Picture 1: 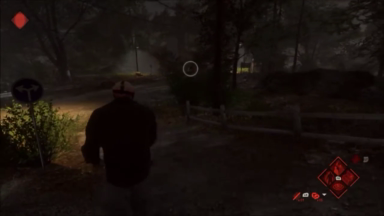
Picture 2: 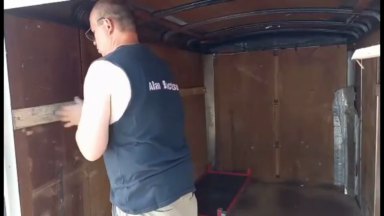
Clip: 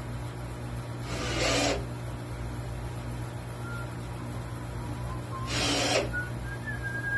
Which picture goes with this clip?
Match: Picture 2